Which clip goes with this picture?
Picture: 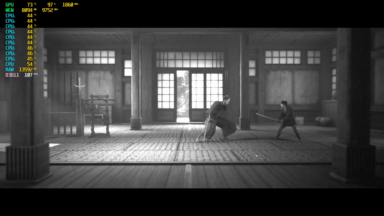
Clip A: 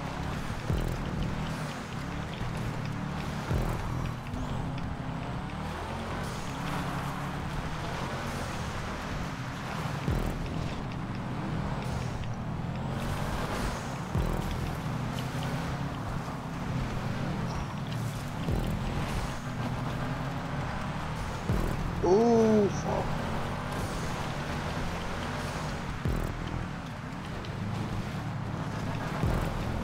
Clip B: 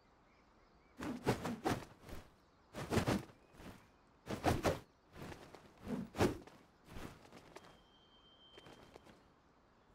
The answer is B